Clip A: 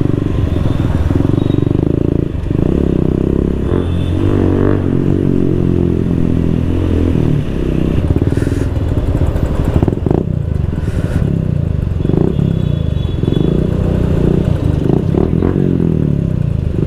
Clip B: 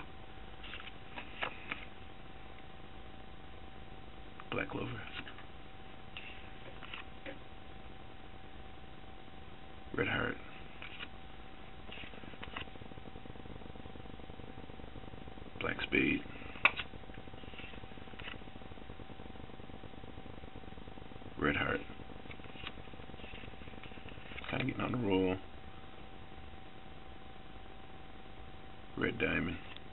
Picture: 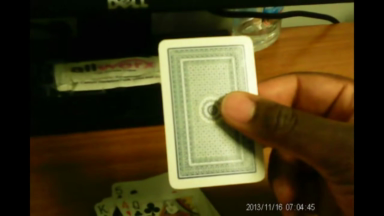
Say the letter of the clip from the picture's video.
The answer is B